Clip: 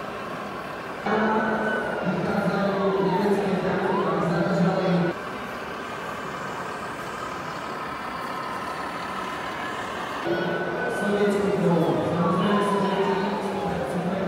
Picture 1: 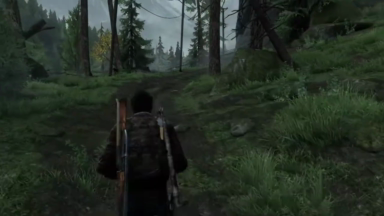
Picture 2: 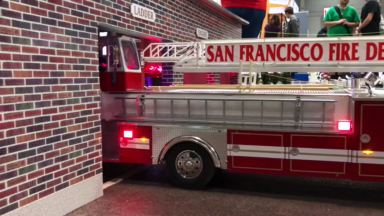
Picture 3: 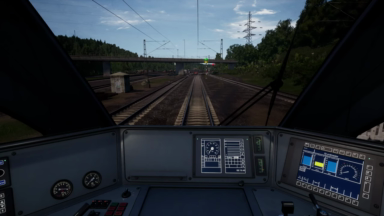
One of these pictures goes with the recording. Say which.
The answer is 2